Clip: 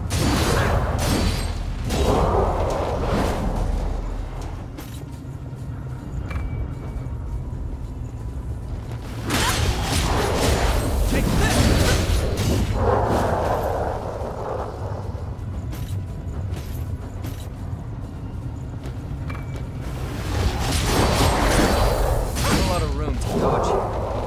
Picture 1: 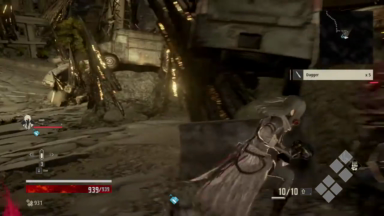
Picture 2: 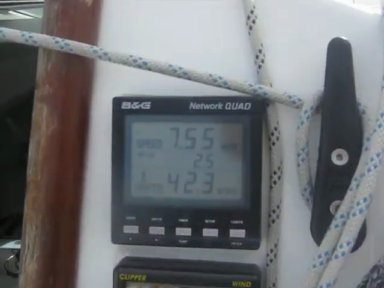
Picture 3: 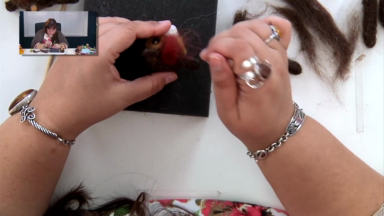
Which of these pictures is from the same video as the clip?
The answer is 1